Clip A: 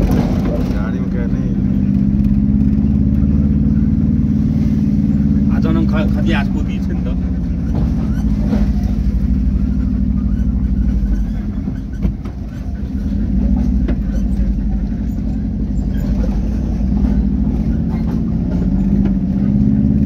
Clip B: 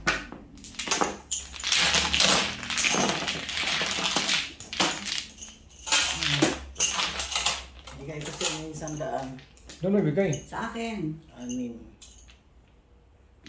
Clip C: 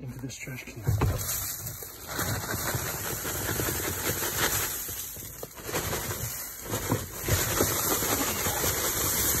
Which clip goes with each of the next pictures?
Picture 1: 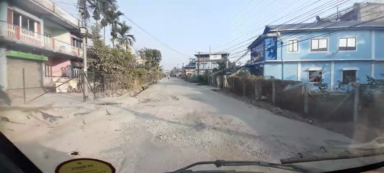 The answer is A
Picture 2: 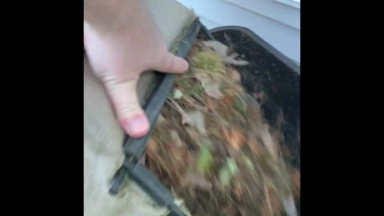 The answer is C